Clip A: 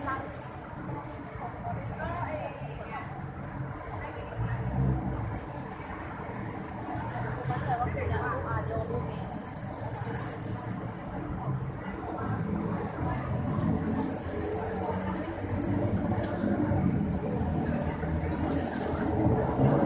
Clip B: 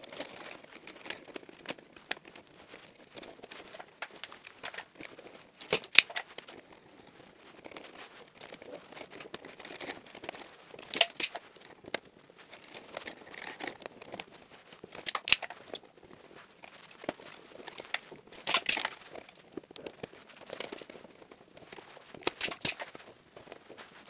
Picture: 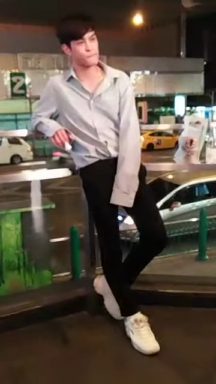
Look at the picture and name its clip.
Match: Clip A